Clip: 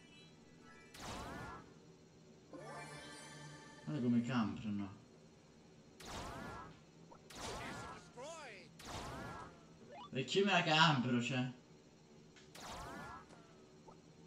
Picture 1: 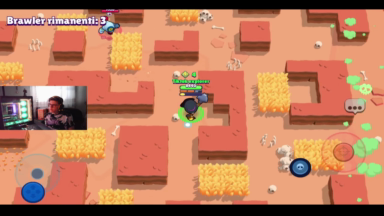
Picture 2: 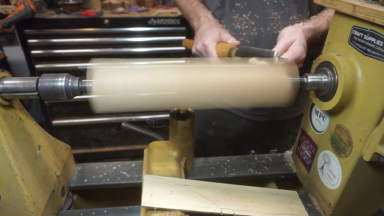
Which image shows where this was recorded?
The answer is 1